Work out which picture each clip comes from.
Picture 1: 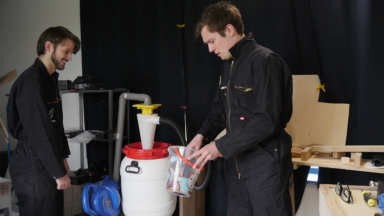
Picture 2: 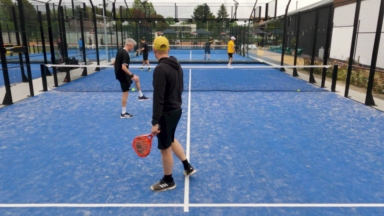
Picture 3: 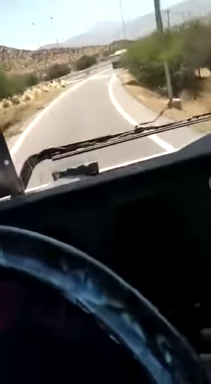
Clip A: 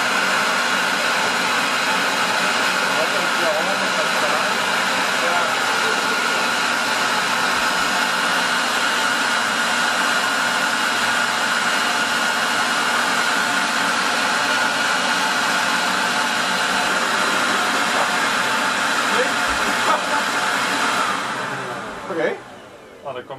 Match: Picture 1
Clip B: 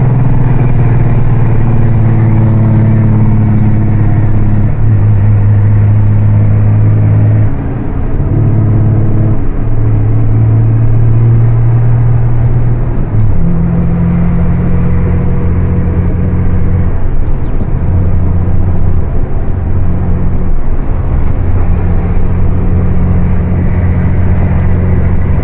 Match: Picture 3